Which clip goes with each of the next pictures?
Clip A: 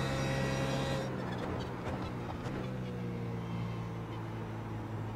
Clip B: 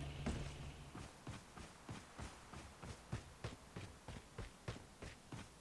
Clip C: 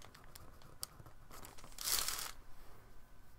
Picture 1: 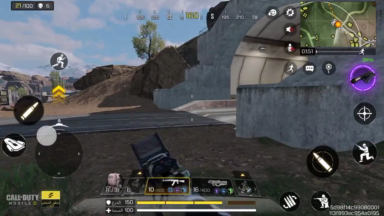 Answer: B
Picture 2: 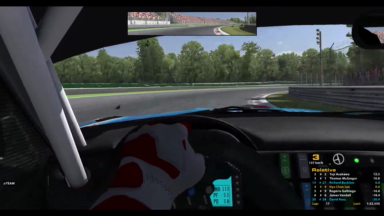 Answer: A